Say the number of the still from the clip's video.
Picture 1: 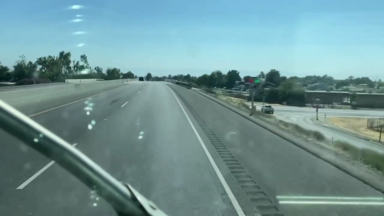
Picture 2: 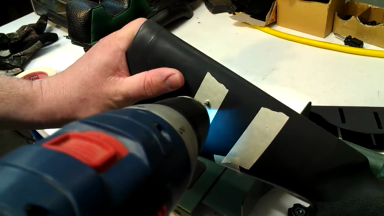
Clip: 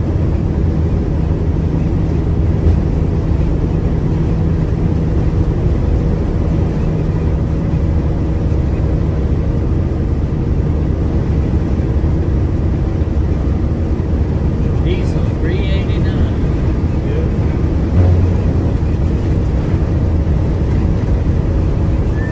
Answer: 1